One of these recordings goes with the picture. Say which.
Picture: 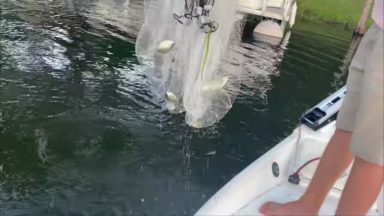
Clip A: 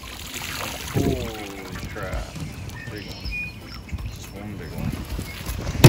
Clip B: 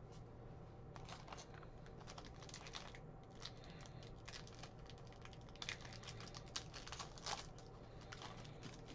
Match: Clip A